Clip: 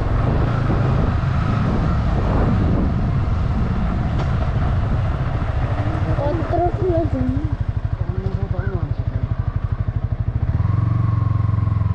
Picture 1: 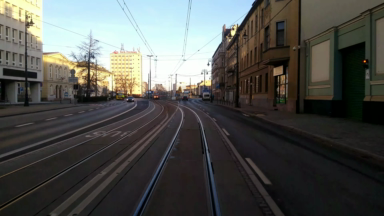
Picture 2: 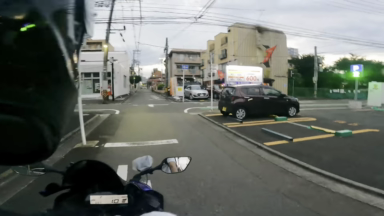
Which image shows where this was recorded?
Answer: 2